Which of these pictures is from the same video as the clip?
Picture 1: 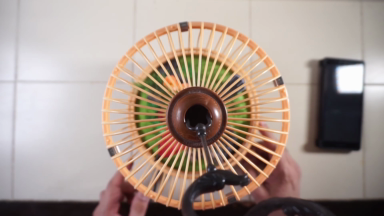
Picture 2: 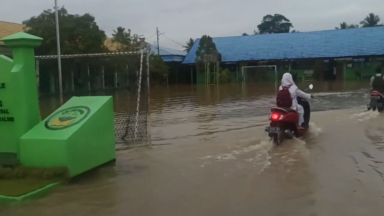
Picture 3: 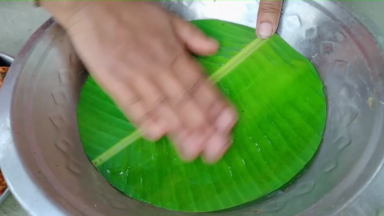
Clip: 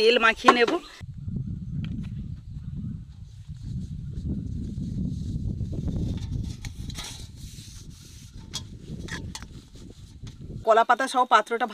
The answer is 3